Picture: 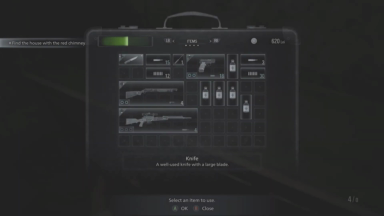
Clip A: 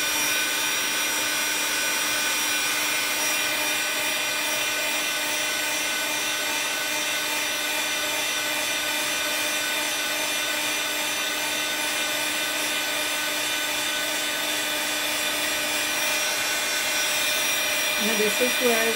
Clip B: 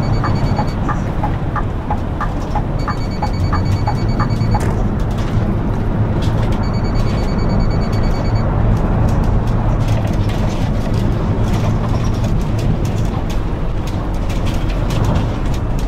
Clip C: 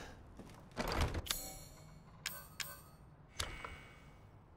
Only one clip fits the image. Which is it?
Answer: C